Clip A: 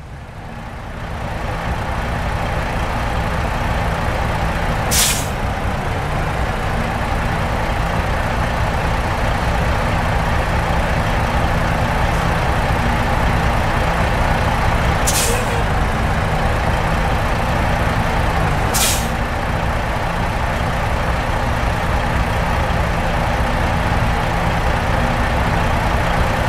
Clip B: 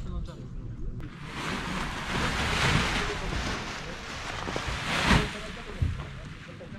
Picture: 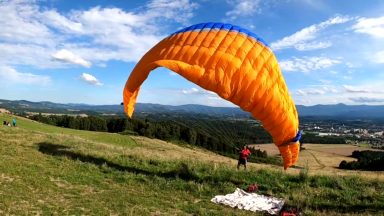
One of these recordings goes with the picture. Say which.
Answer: B